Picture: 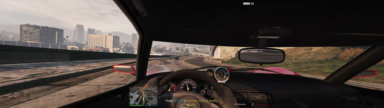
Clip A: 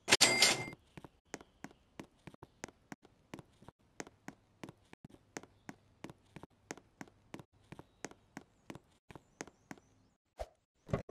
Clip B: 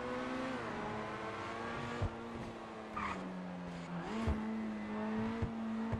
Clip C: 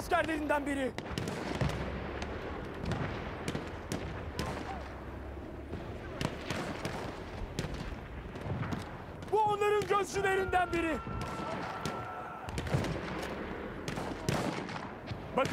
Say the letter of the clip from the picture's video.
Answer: B